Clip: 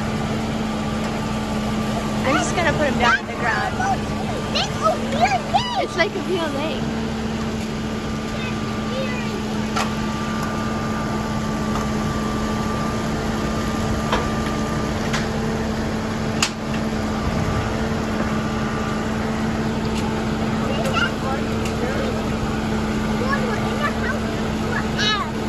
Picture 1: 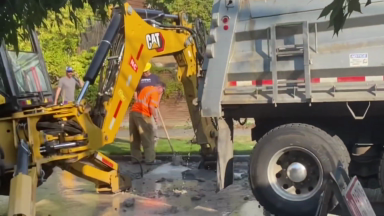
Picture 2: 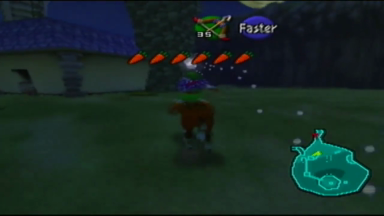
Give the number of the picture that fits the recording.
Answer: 1